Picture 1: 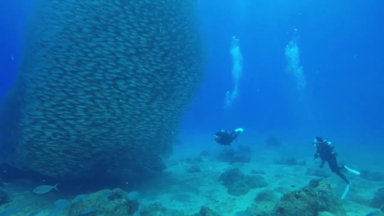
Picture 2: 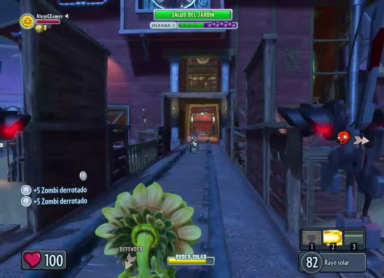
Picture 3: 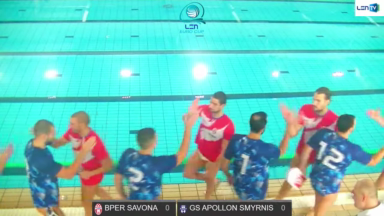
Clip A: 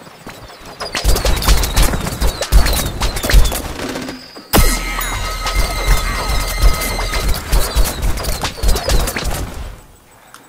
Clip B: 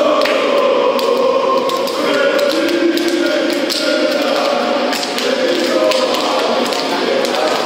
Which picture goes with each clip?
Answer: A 2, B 3